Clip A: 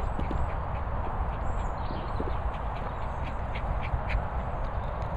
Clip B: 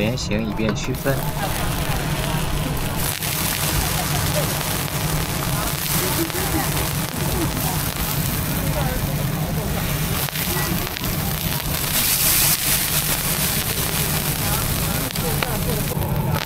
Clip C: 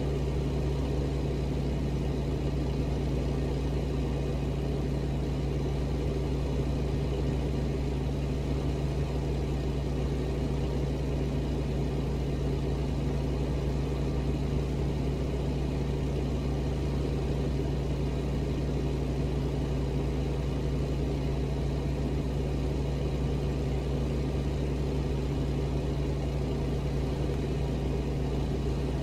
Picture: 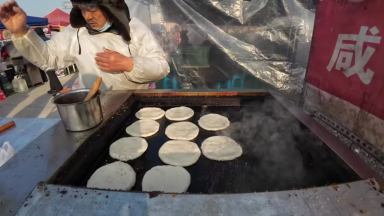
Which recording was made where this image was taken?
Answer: B